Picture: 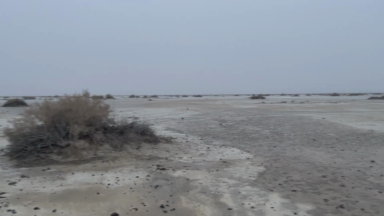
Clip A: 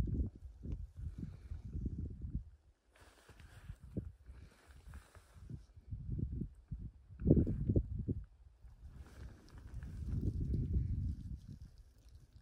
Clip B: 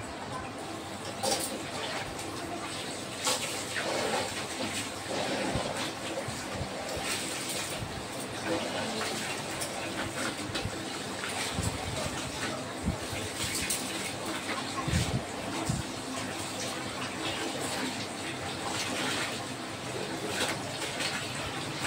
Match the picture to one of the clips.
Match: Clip A